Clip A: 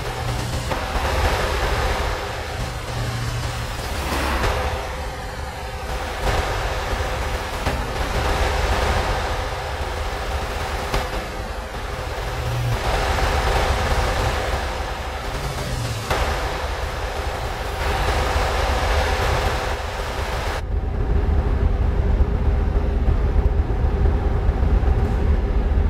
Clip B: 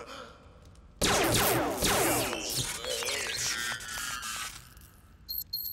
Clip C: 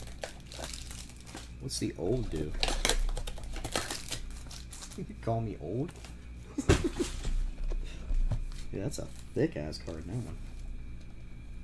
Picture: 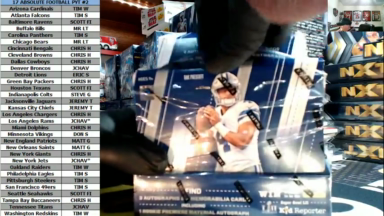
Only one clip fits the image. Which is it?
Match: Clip C